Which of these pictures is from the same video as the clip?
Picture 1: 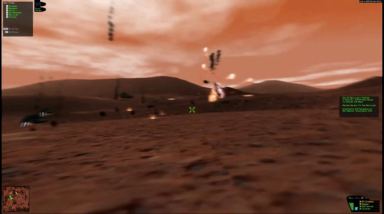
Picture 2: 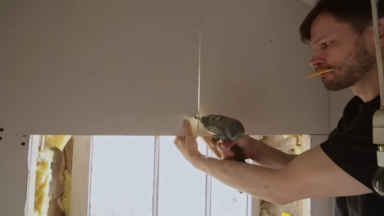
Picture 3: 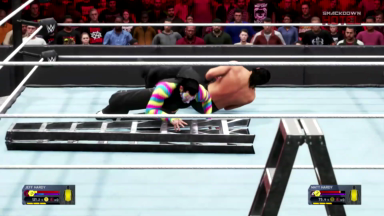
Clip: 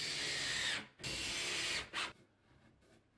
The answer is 2